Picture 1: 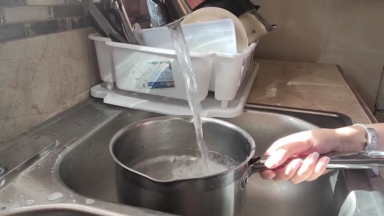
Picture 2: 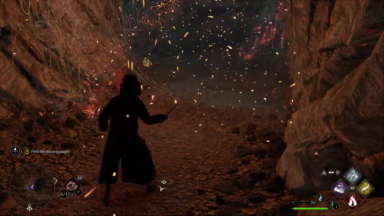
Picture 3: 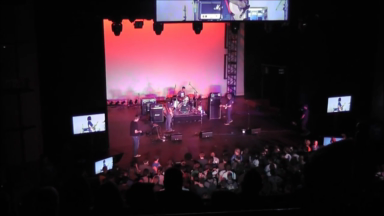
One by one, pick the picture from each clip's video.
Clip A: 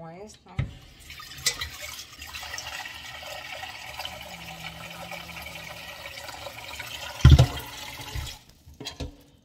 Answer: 1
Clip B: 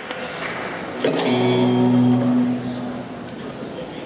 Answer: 3